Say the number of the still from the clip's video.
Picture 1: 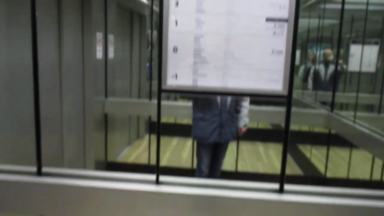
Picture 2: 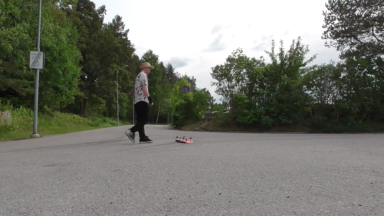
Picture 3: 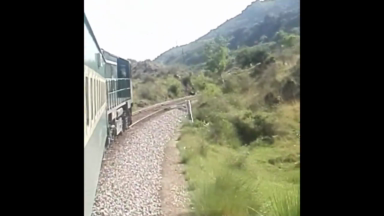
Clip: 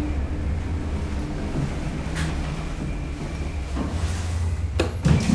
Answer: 1